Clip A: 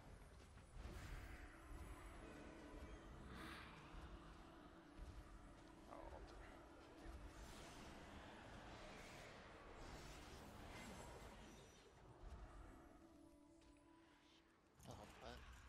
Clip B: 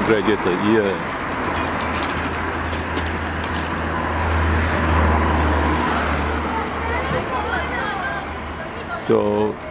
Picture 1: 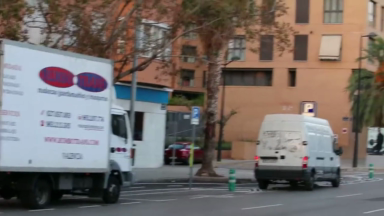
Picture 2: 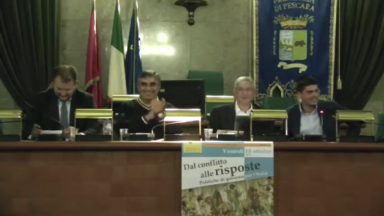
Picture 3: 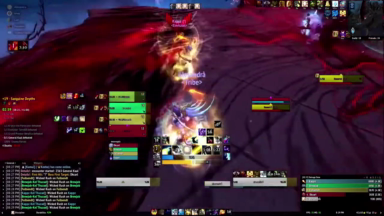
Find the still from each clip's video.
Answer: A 3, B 1